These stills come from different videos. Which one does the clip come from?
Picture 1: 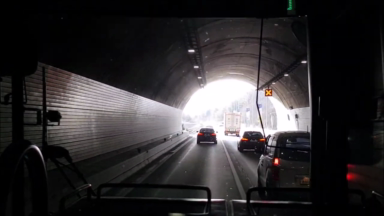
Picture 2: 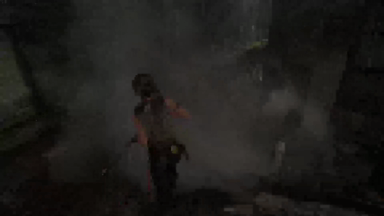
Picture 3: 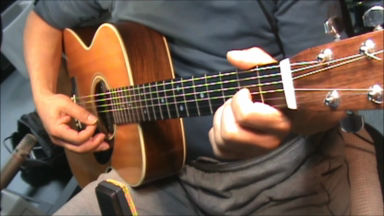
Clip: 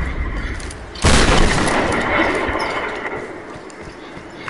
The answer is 2